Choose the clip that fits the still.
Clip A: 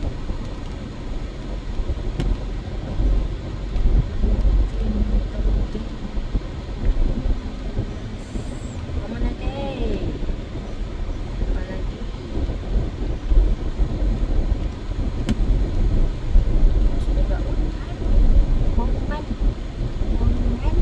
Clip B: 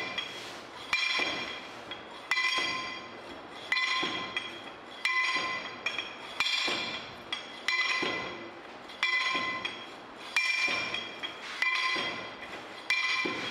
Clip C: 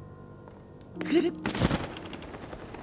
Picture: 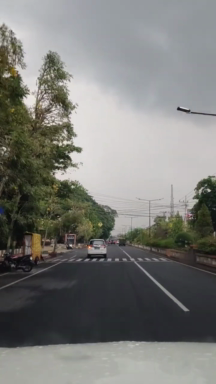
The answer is A